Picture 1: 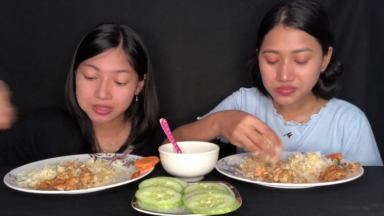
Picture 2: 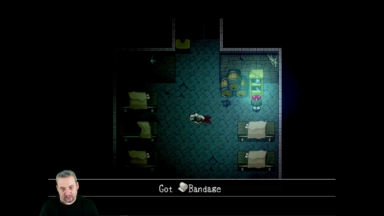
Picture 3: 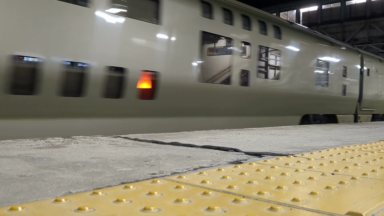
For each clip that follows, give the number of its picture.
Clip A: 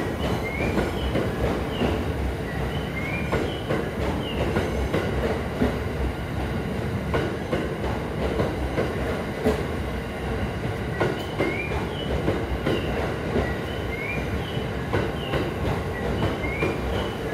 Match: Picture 3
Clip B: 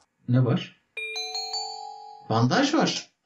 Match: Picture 2